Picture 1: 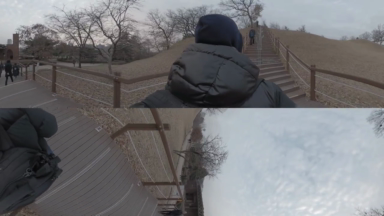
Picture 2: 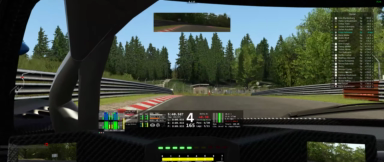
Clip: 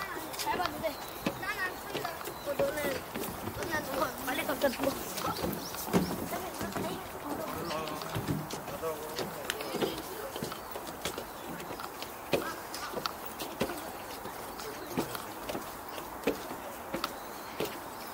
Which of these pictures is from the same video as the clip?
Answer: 1